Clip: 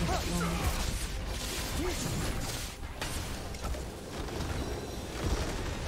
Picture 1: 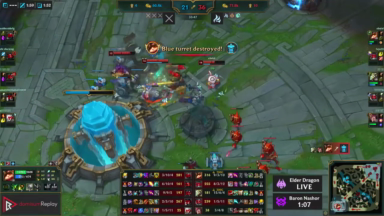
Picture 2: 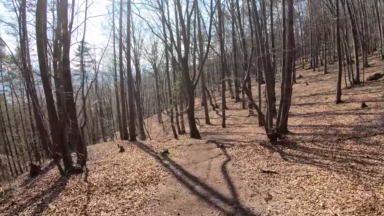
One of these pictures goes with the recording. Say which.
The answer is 1